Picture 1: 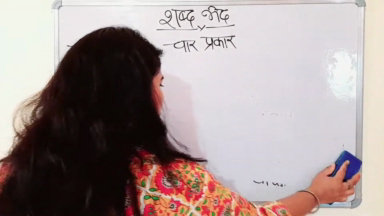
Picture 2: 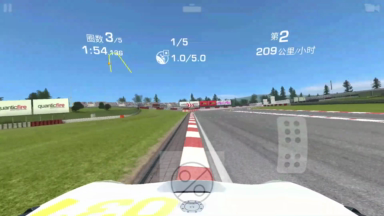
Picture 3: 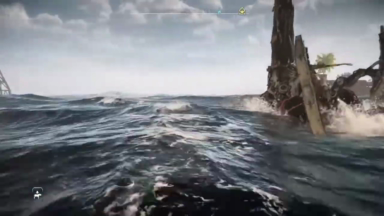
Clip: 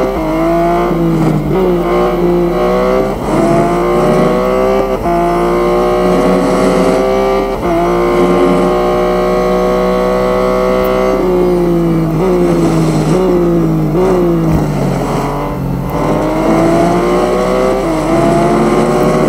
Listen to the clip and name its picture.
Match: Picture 2